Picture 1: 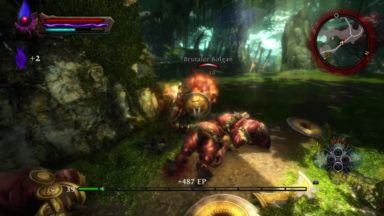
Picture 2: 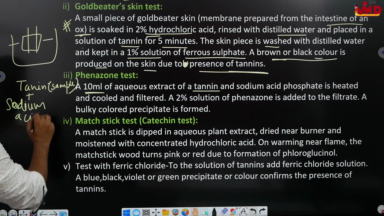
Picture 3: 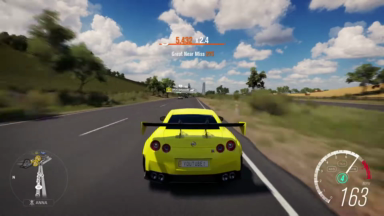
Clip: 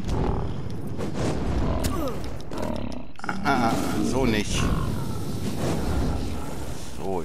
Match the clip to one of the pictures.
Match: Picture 1